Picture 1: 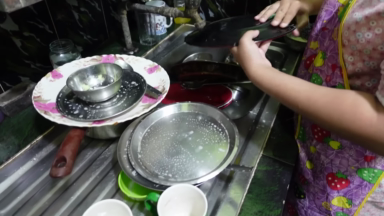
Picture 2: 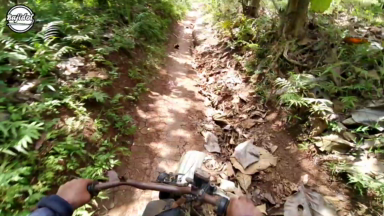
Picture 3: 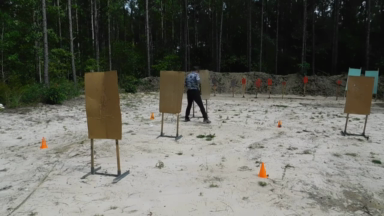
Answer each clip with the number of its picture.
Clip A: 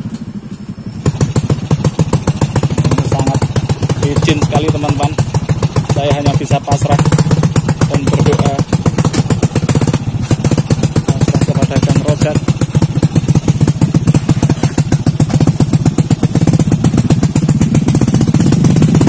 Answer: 2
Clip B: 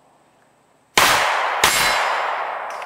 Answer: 3